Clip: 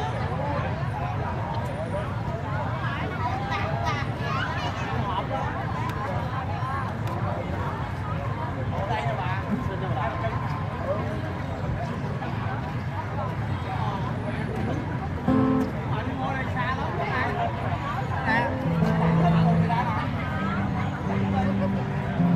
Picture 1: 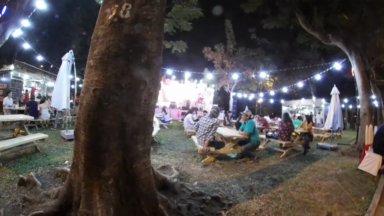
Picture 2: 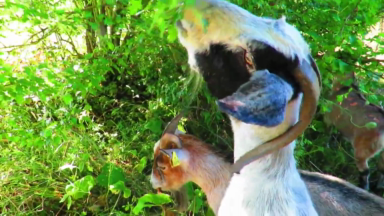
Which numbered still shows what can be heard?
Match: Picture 1